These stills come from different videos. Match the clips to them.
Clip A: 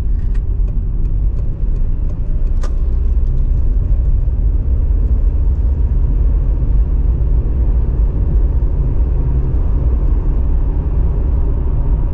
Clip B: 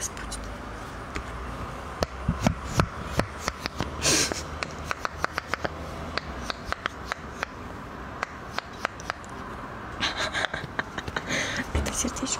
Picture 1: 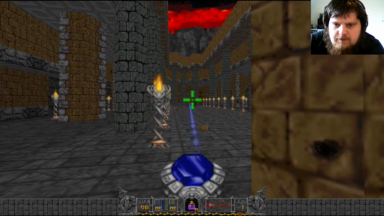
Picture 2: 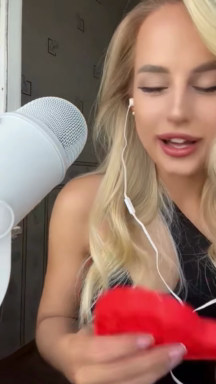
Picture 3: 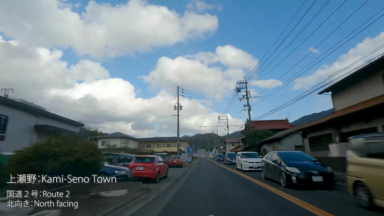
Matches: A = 3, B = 2